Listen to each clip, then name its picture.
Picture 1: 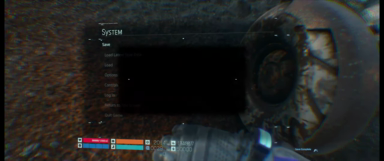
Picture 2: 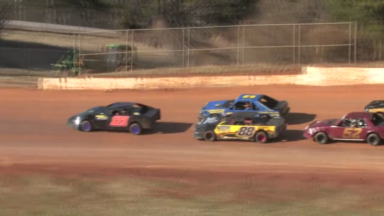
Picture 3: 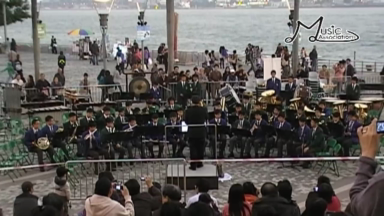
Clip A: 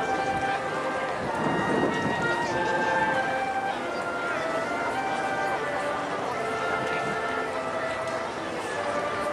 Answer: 3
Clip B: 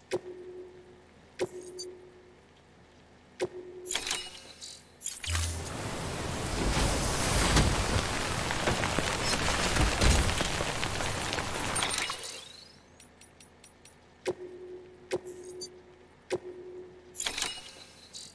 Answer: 1